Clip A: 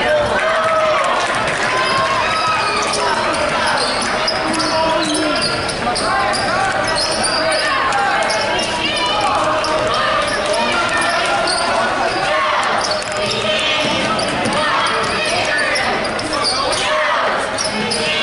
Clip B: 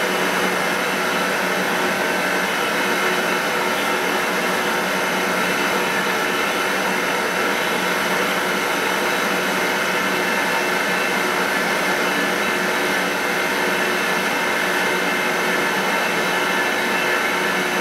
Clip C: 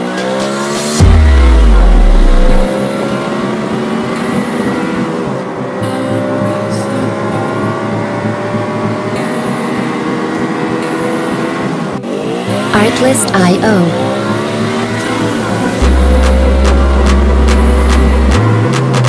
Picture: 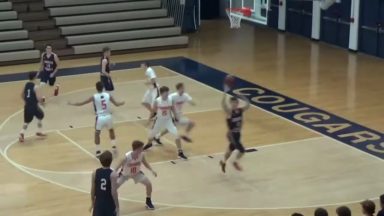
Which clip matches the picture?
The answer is A